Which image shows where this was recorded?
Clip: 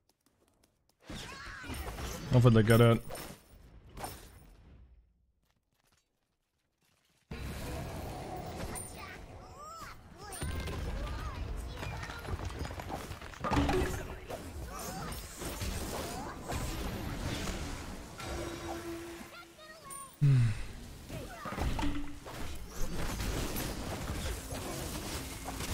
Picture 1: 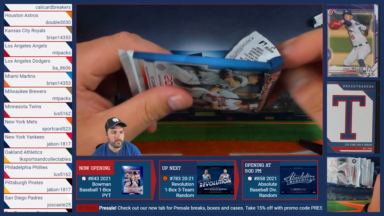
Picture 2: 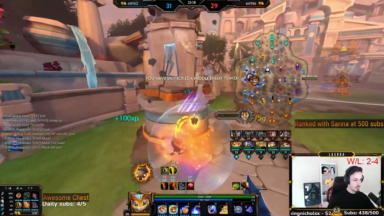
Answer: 2